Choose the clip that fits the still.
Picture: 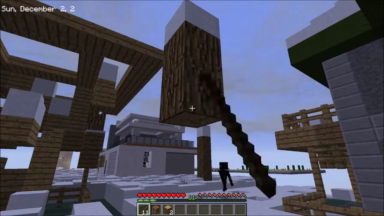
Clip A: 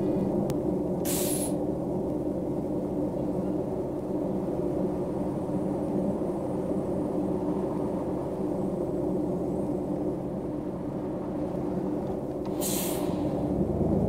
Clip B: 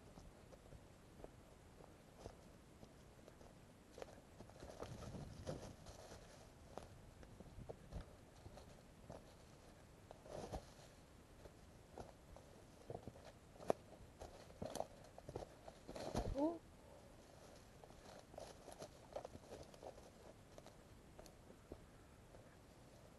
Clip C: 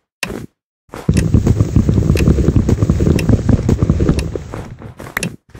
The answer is C